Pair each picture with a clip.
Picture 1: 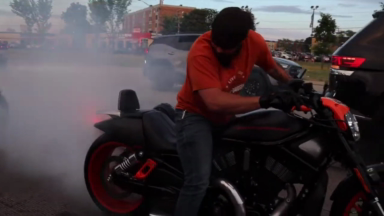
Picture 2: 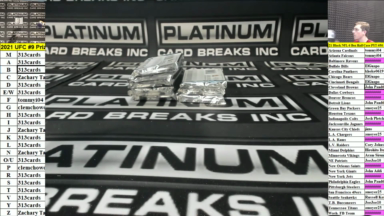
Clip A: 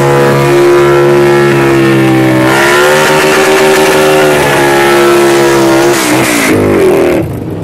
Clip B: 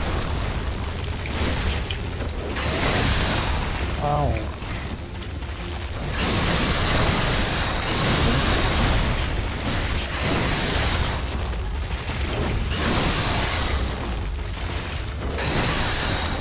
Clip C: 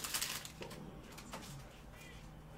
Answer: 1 A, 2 C